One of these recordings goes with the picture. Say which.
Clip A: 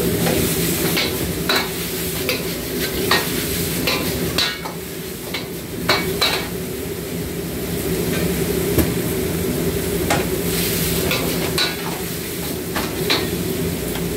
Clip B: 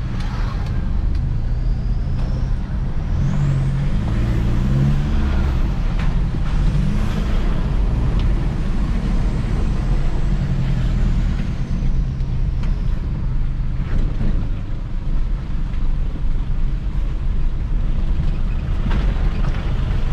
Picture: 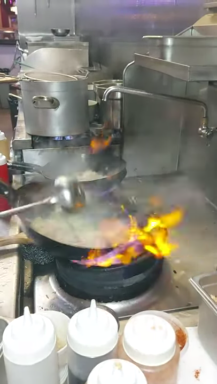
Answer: A